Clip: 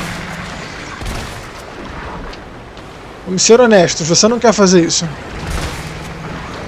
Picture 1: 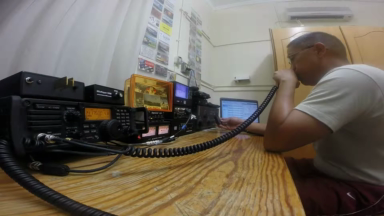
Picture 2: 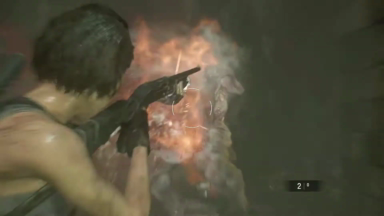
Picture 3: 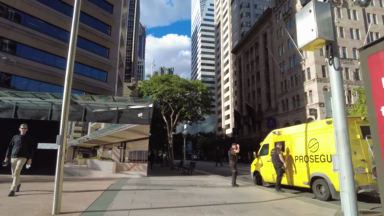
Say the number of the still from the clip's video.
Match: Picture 2